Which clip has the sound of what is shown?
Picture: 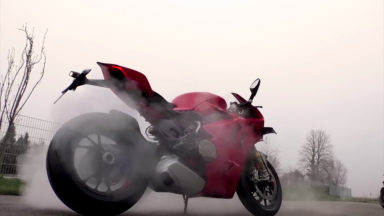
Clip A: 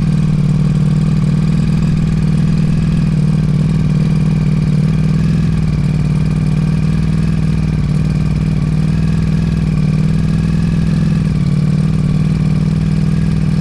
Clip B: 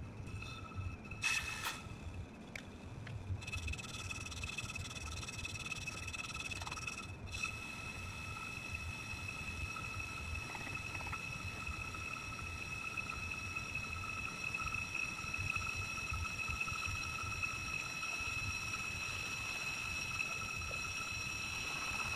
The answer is A